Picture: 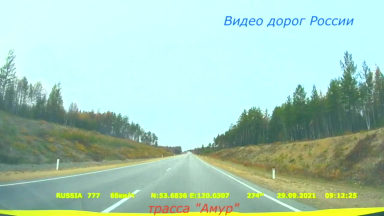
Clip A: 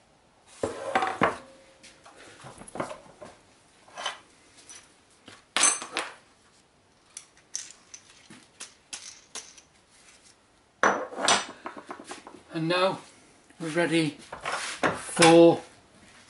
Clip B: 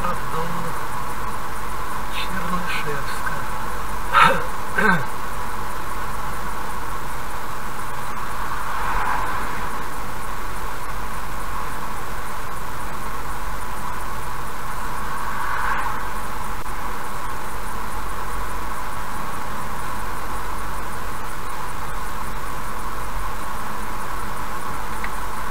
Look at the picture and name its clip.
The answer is B